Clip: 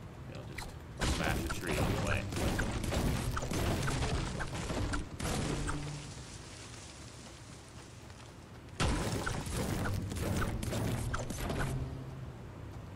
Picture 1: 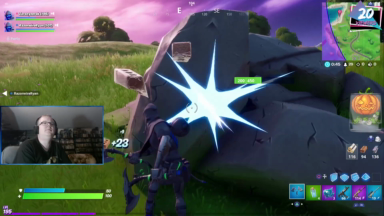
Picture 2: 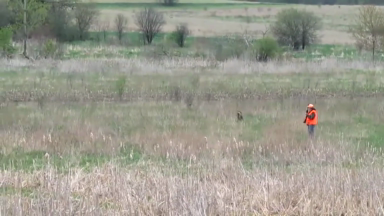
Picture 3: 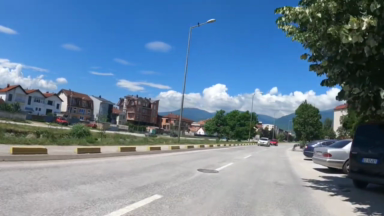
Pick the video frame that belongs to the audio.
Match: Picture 1